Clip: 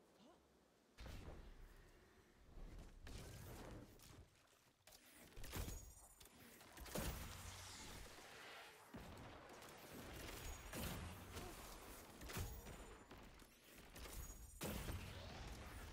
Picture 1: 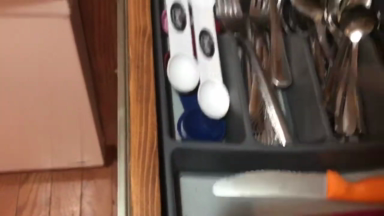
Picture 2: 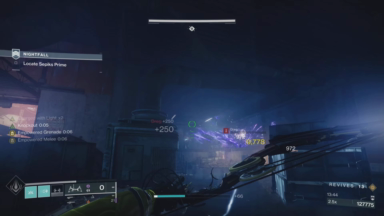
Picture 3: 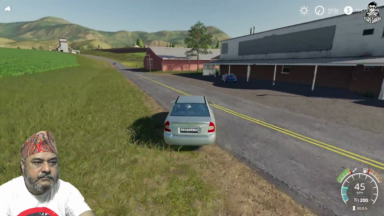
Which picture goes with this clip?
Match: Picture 2